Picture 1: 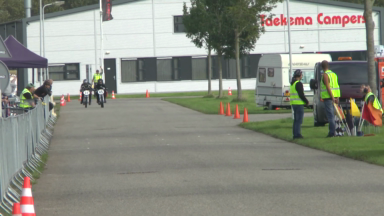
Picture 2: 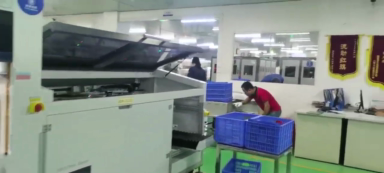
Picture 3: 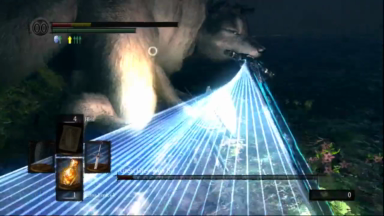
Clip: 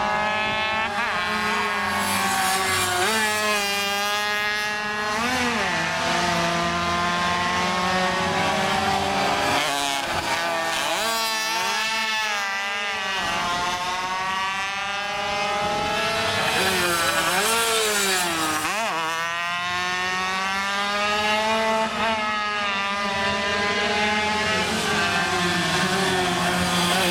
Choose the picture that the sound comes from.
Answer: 1